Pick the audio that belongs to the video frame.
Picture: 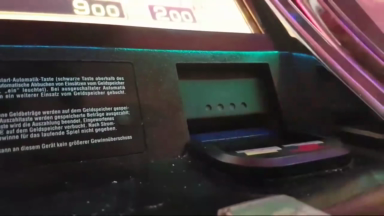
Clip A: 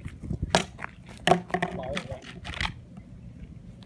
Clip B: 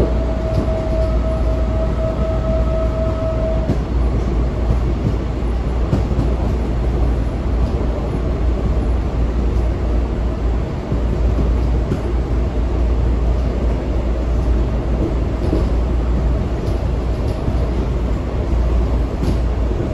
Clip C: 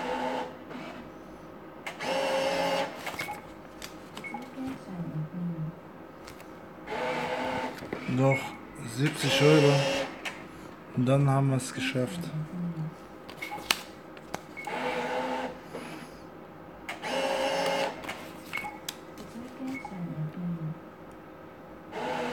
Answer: C